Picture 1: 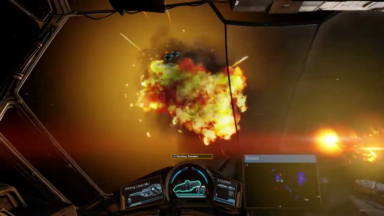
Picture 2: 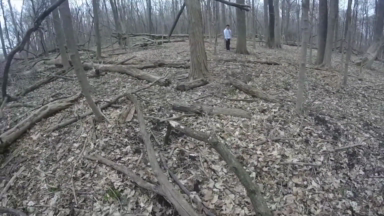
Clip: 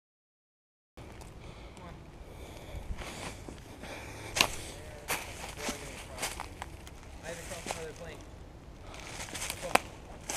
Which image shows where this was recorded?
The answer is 2